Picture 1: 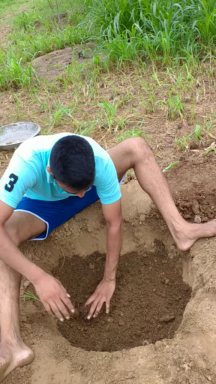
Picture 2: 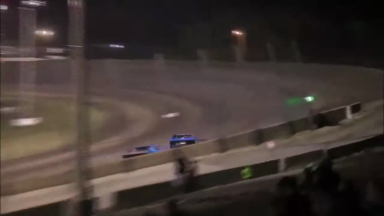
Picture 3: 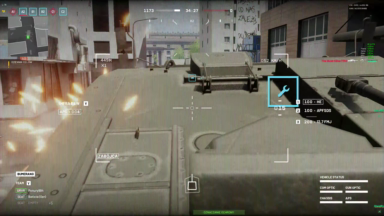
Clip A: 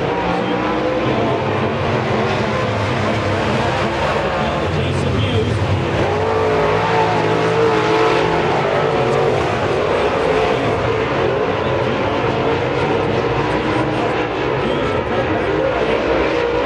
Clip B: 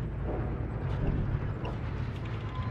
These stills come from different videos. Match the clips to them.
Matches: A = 2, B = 3